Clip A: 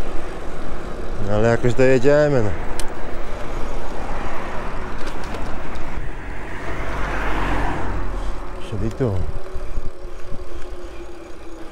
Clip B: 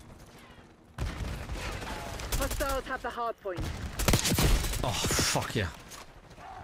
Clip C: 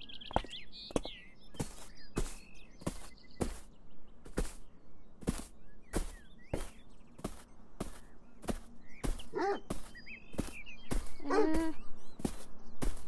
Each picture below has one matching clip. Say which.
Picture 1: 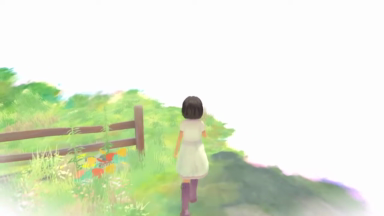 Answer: C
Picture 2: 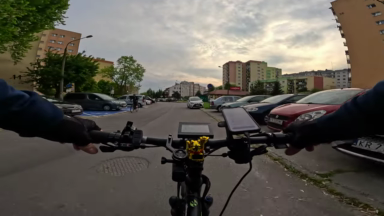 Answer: A